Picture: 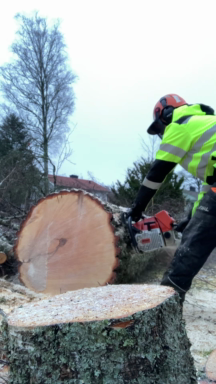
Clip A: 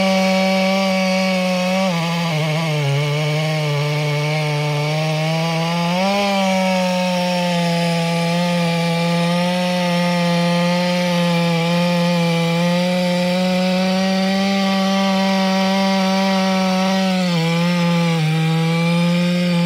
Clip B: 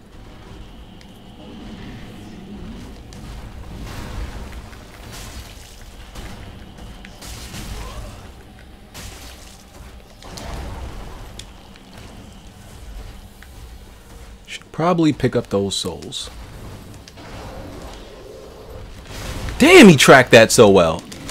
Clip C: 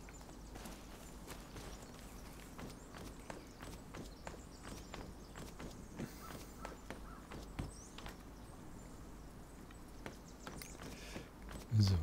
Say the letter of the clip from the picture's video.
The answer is A